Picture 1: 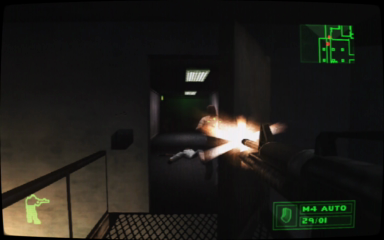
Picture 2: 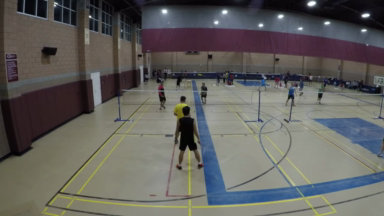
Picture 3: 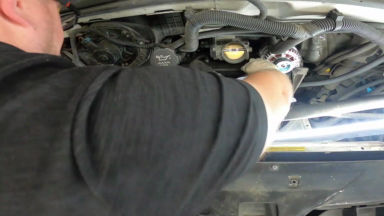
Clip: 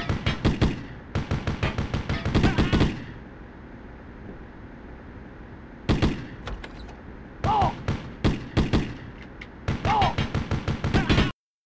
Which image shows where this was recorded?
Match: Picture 1